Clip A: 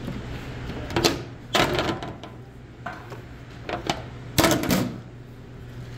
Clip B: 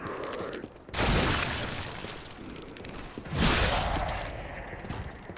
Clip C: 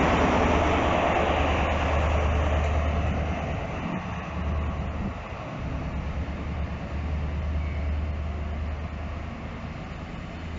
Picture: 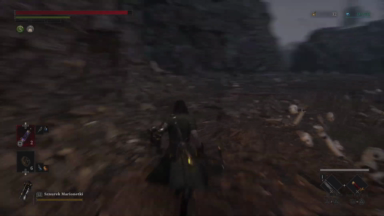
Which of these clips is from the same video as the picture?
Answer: B